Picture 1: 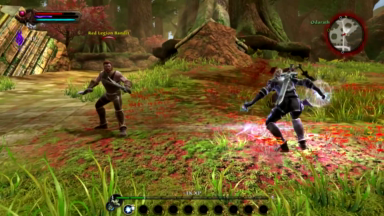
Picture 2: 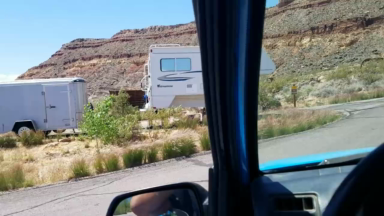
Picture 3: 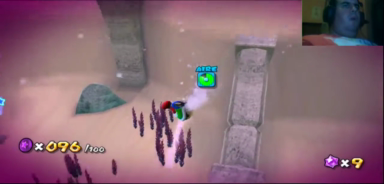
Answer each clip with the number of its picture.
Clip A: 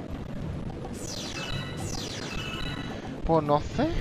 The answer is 3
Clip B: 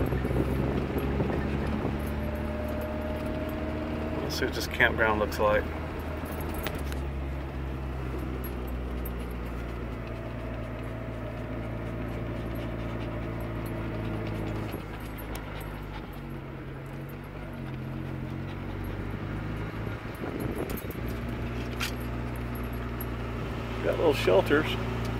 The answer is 2